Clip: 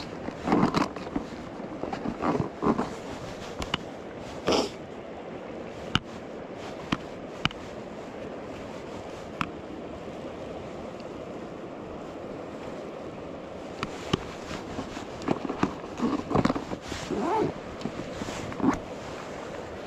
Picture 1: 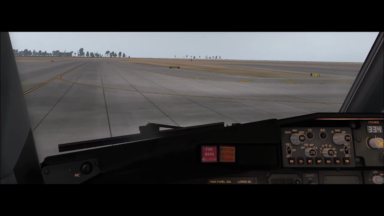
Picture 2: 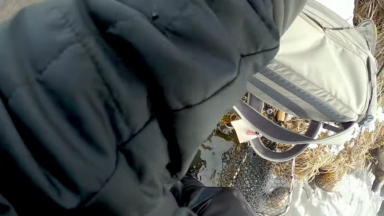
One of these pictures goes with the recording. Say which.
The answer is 2